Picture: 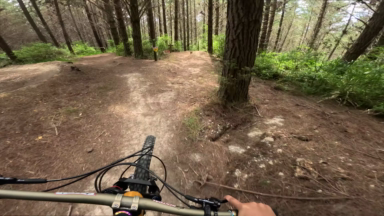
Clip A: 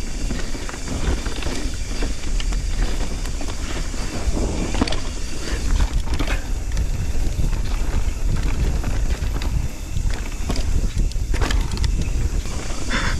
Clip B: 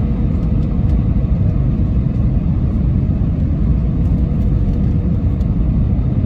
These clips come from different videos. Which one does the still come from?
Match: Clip A